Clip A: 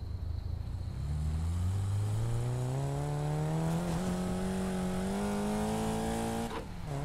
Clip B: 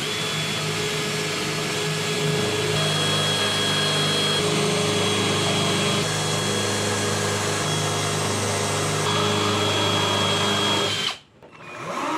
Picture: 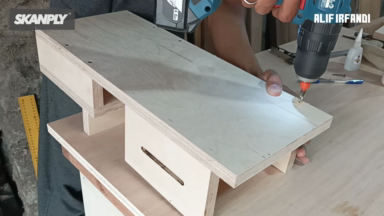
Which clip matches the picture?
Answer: B